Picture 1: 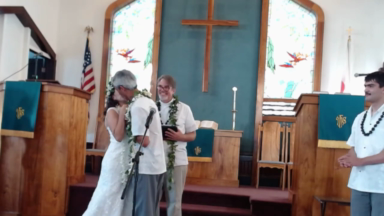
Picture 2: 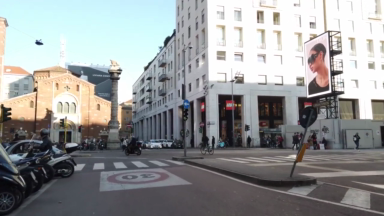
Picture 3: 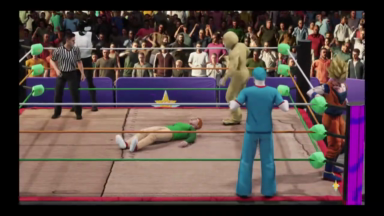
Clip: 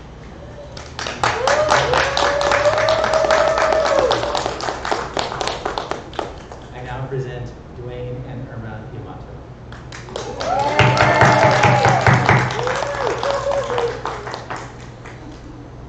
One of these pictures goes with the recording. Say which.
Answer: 1